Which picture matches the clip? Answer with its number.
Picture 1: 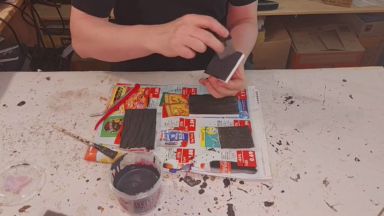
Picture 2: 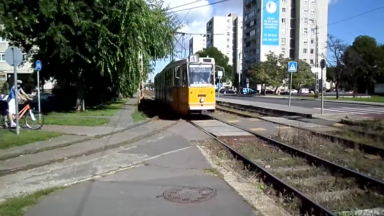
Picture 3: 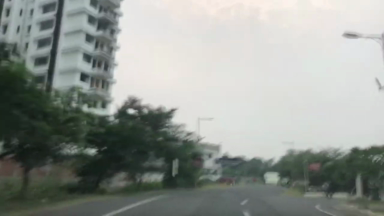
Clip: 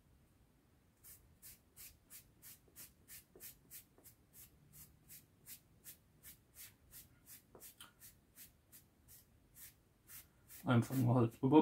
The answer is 1